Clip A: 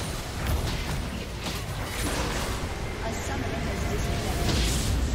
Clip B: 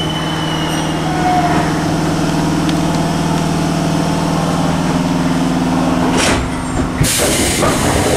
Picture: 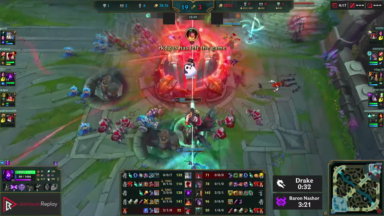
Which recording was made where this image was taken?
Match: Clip A